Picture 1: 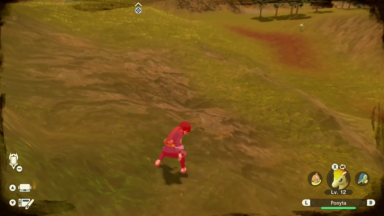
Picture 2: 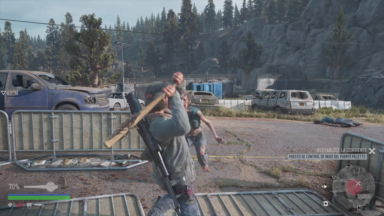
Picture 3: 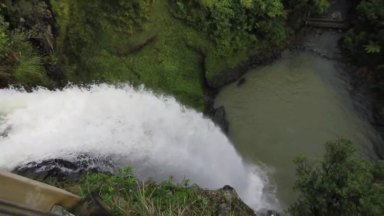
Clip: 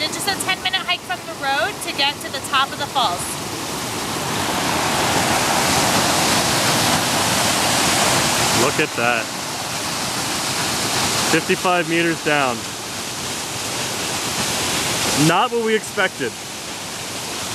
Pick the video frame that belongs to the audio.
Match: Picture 3